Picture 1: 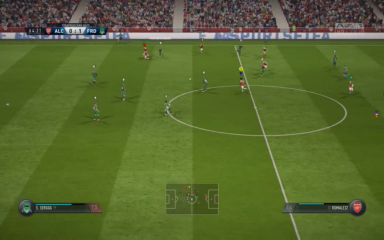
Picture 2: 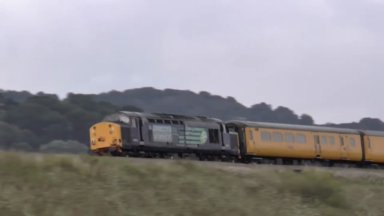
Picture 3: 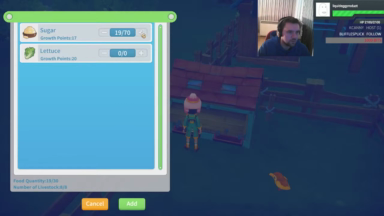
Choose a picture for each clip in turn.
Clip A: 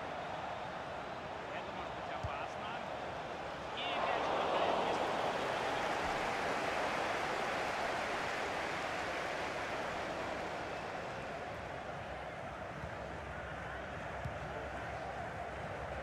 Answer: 1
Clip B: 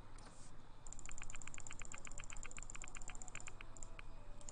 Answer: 3